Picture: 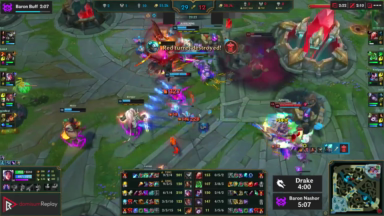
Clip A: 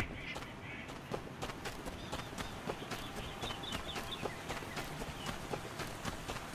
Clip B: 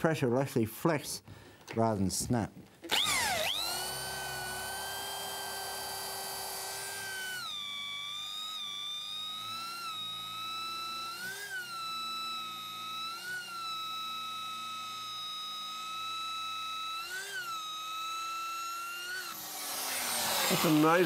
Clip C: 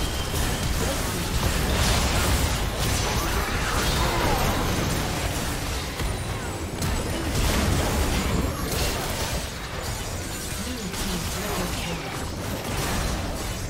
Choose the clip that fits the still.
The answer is C